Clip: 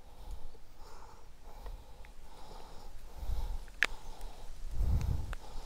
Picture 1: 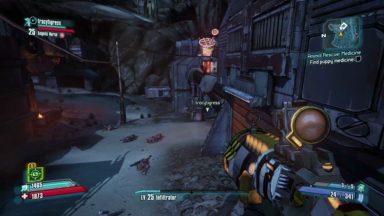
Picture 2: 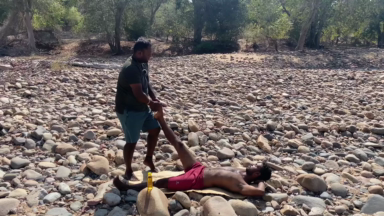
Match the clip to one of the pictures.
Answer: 2